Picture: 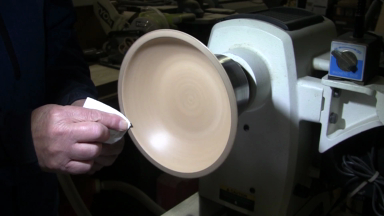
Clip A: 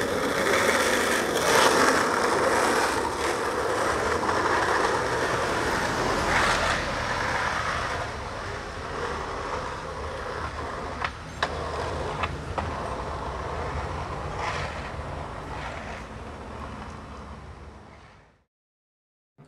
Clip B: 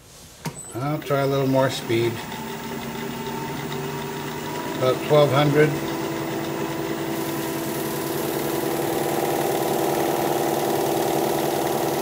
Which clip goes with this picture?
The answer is B